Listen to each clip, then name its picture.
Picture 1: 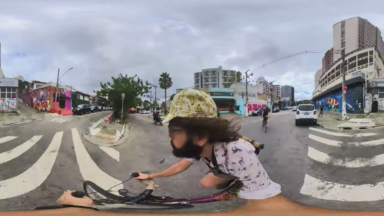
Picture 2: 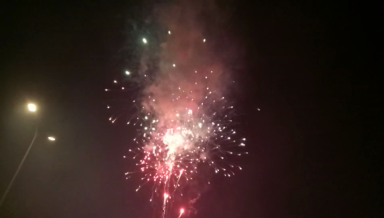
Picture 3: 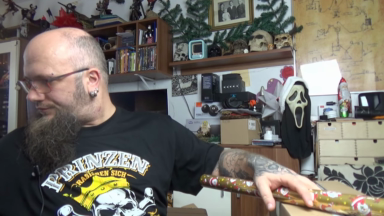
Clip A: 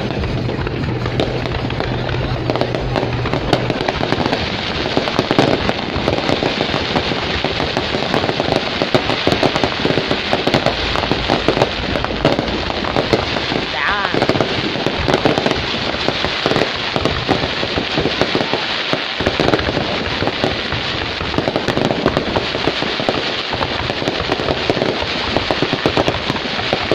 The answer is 2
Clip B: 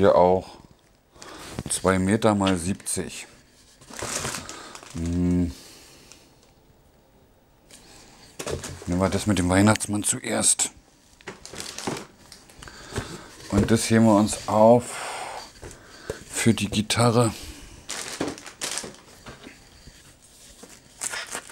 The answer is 3